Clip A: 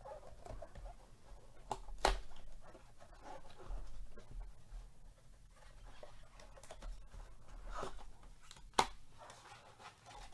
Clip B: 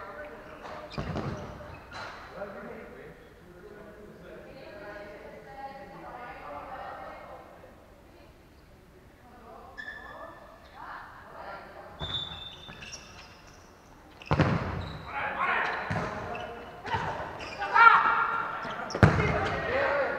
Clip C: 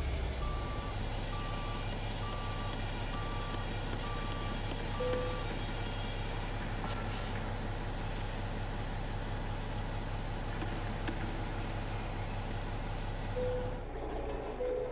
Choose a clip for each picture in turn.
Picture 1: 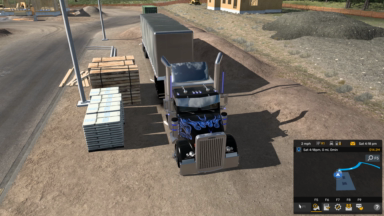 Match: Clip C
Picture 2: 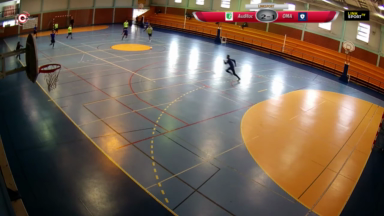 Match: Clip B